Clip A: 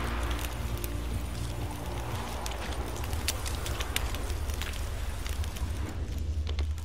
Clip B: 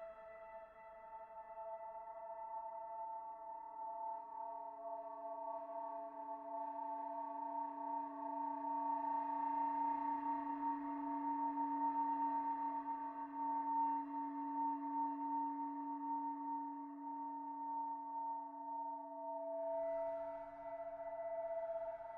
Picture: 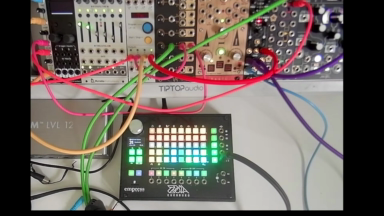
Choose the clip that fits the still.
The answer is B